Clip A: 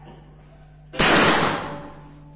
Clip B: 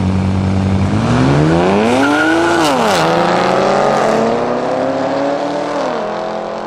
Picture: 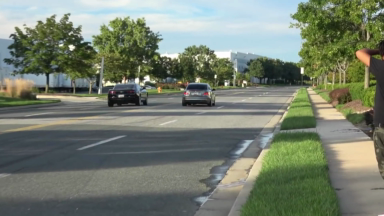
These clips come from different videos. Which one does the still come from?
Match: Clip B